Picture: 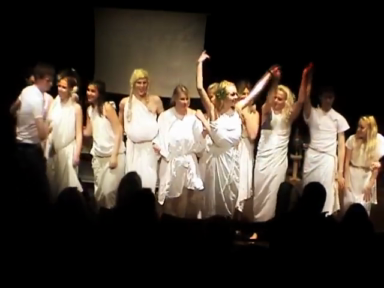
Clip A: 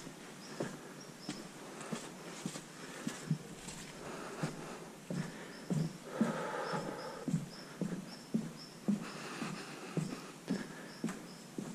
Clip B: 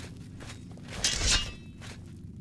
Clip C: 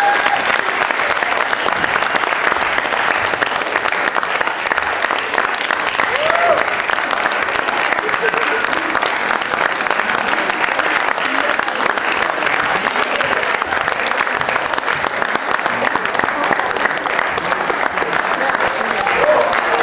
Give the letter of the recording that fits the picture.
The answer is C